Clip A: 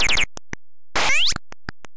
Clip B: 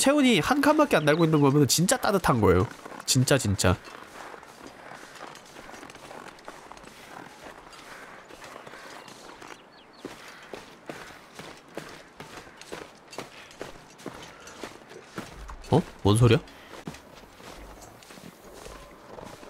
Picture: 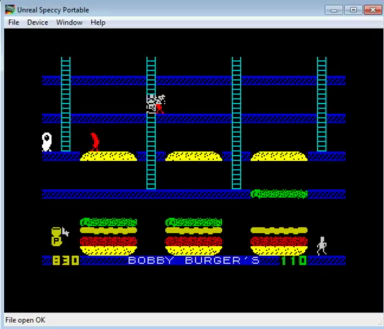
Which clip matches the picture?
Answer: A